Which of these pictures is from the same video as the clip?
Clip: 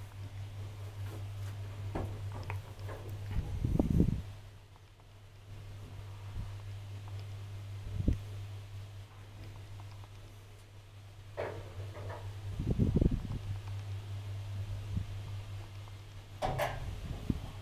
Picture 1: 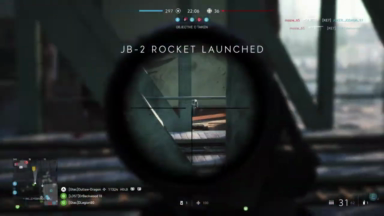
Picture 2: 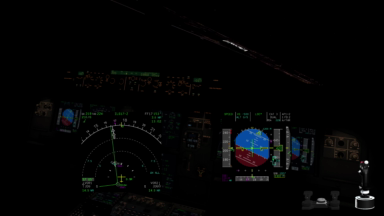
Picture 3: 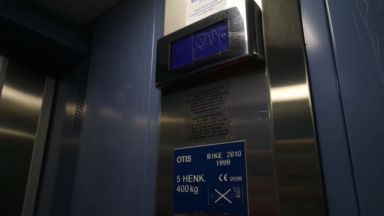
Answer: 3